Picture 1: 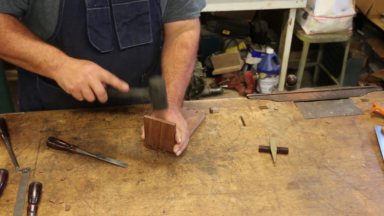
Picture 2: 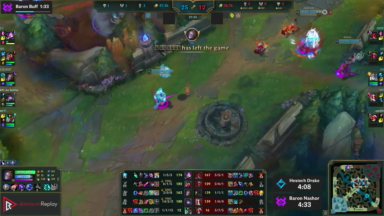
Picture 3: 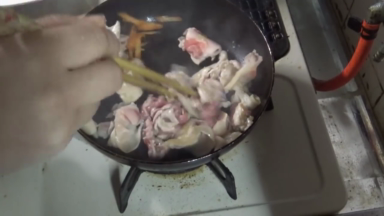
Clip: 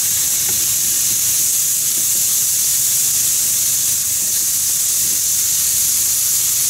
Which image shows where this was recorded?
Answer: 3